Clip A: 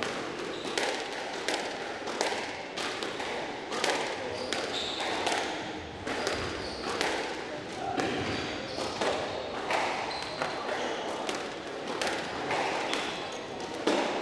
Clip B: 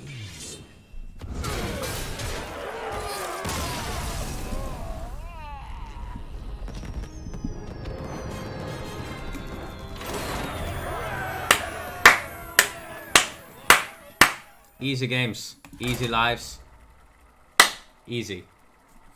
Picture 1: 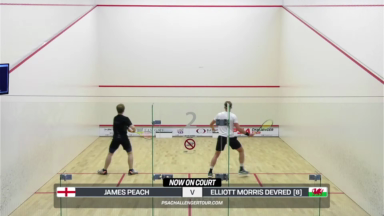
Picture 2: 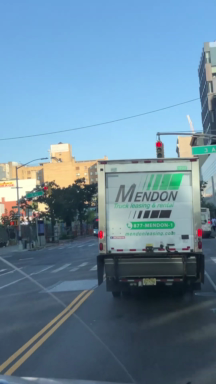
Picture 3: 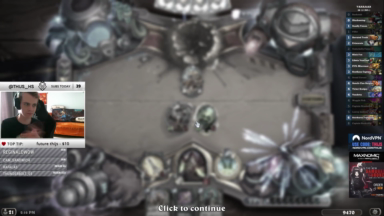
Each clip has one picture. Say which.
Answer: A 1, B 3